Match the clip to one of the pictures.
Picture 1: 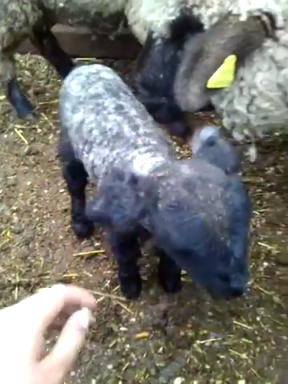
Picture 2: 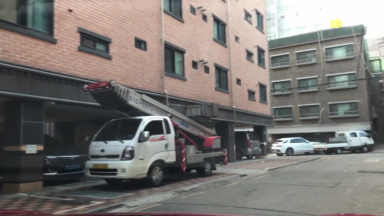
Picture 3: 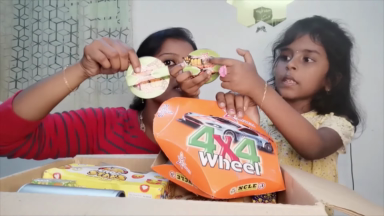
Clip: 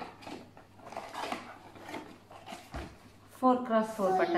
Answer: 3